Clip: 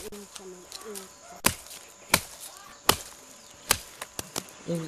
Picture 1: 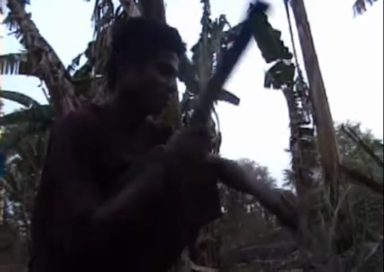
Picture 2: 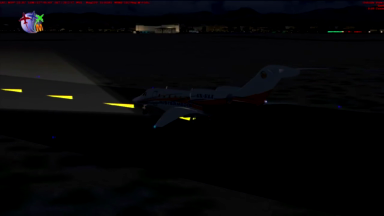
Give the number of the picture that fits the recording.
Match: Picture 1